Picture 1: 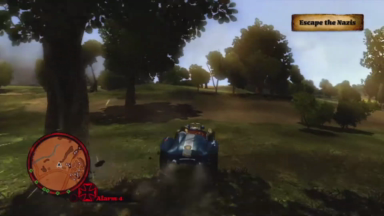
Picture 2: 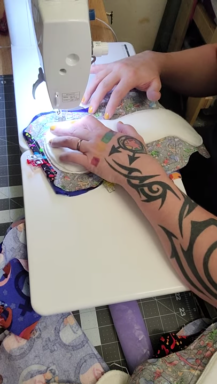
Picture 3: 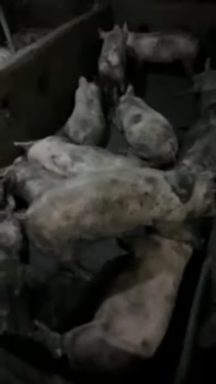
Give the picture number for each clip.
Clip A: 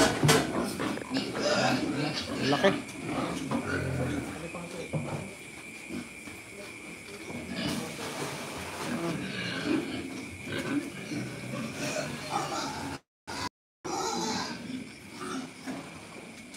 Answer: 3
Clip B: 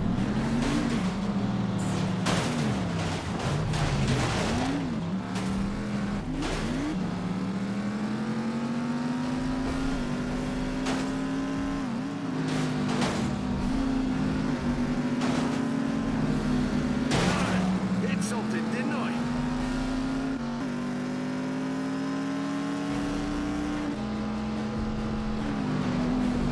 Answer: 1